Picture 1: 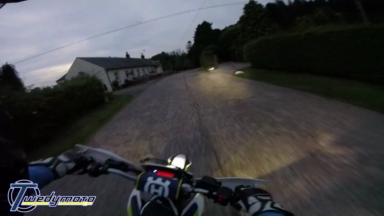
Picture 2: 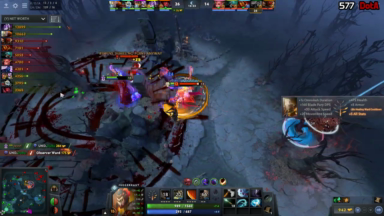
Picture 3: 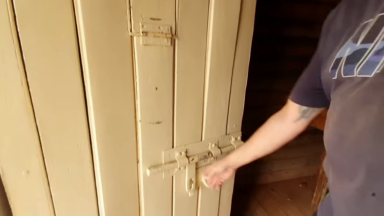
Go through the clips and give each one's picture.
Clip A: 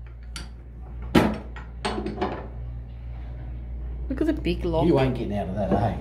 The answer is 3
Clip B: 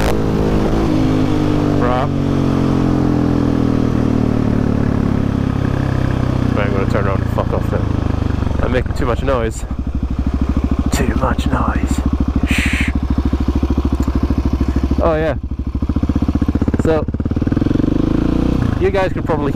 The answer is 1